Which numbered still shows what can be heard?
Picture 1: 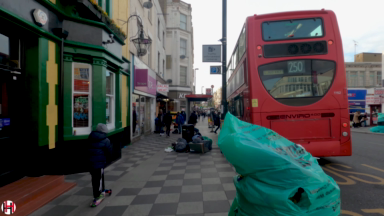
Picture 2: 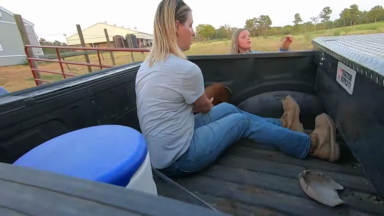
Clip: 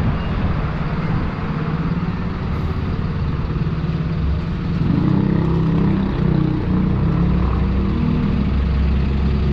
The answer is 1